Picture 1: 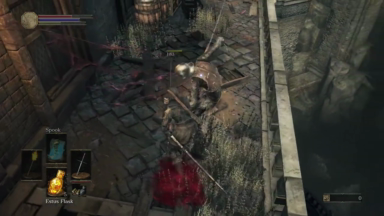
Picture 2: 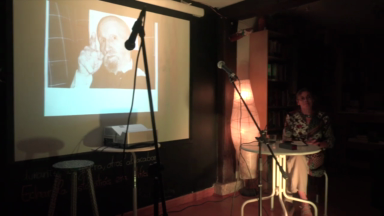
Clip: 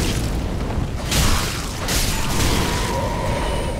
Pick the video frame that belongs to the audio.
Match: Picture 1